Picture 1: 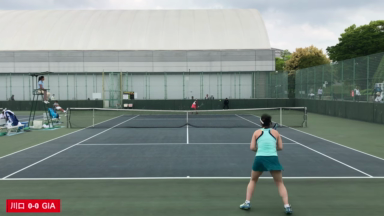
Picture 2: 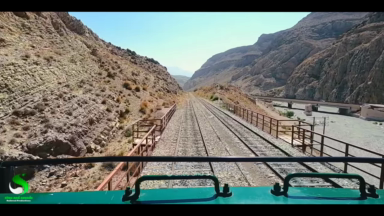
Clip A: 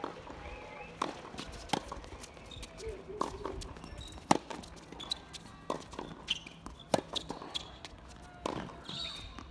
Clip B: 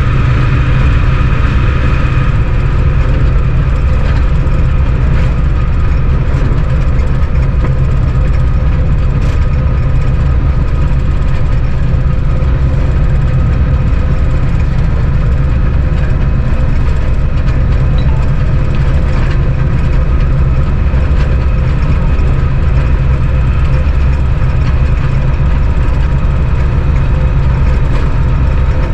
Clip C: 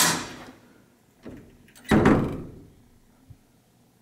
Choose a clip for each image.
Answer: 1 A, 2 B